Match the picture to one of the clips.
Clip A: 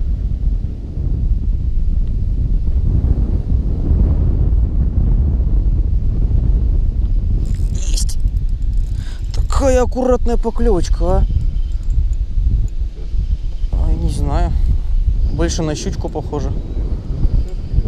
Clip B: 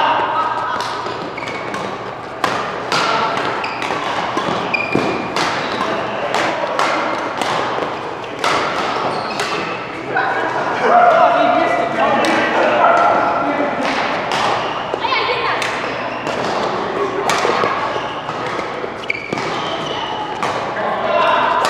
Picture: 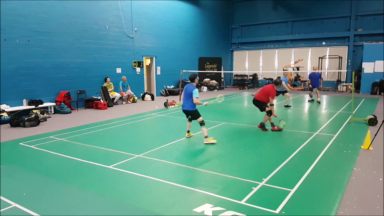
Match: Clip B